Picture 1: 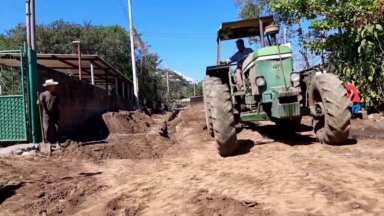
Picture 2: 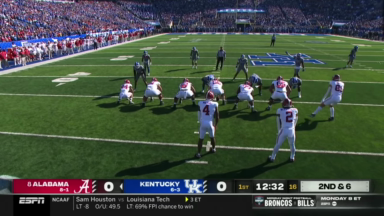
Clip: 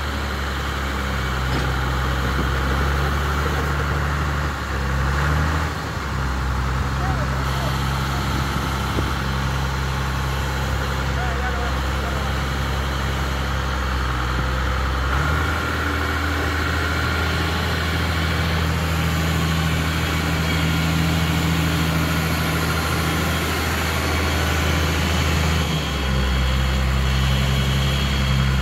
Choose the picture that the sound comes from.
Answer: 1